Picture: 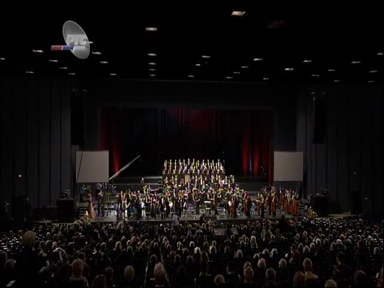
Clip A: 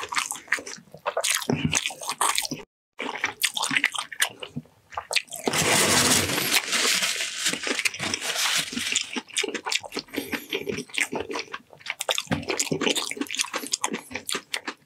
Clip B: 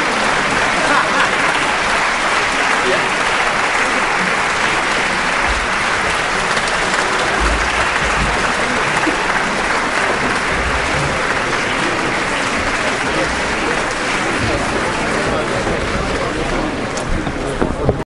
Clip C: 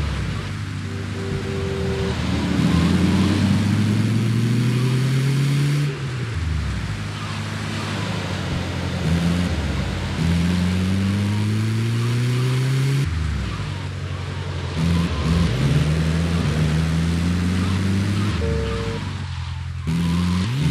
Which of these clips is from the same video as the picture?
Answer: B